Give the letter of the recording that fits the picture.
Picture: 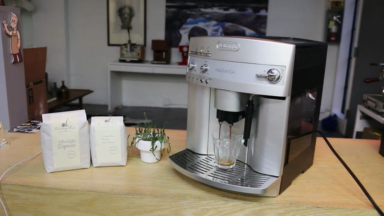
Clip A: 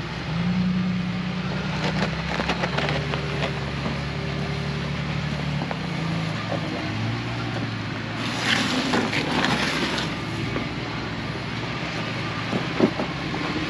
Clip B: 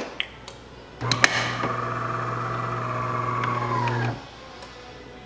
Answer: B